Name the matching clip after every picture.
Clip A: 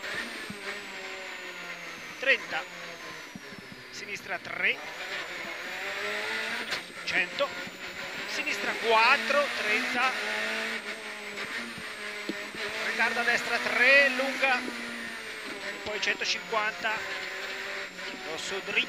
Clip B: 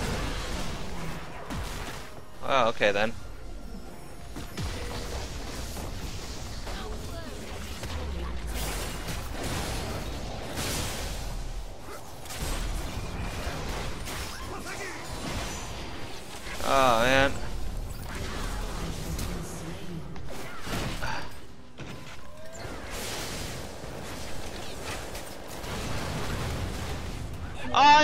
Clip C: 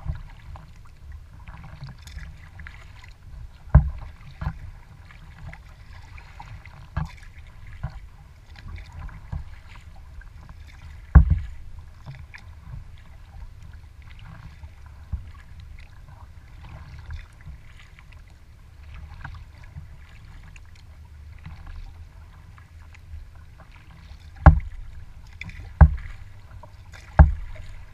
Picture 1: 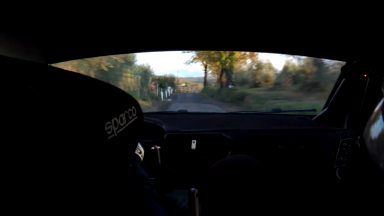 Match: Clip A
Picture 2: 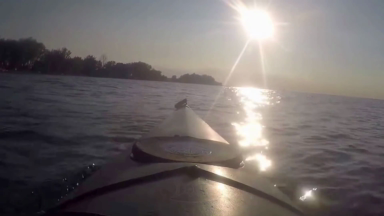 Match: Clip C